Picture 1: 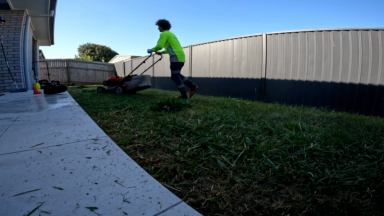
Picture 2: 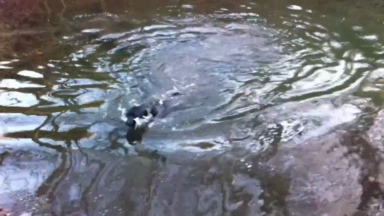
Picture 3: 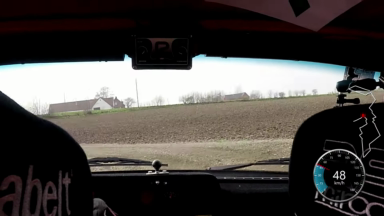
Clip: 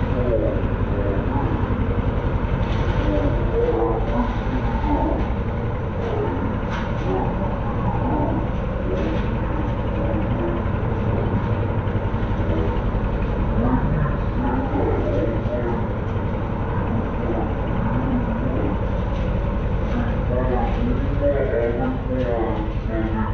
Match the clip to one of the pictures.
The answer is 1